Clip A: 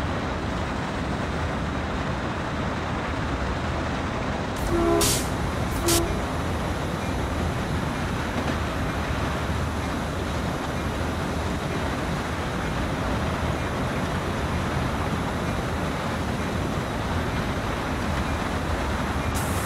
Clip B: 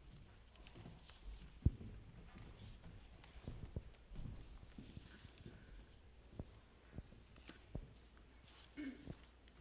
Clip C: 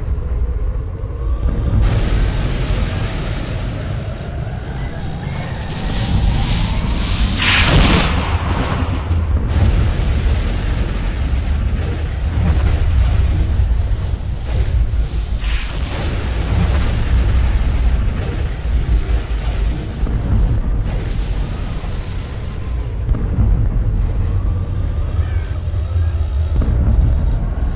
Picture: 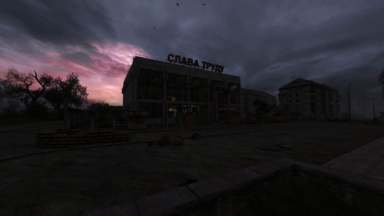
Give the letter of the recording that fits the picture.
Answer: C